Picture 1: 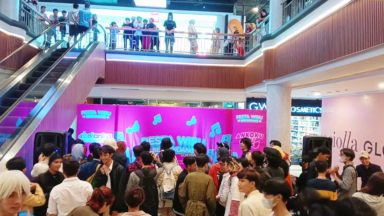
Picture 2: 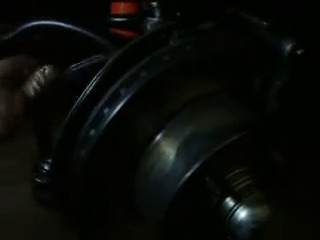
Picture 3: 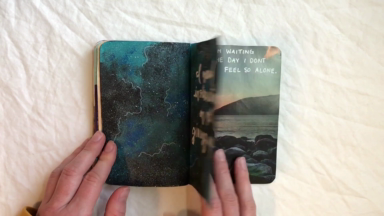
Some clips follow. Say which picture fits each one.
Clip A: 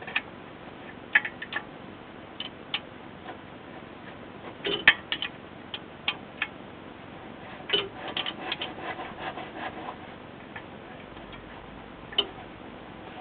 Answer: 2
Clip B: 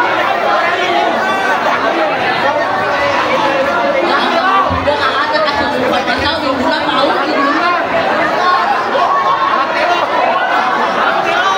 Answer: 1